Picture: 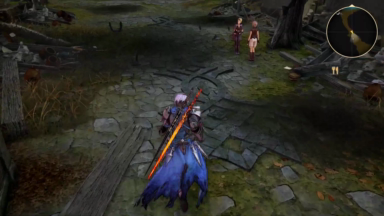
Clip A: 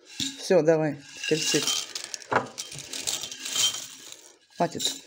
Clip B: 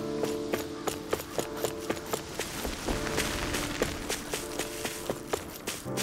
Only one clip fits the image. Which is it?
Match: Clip B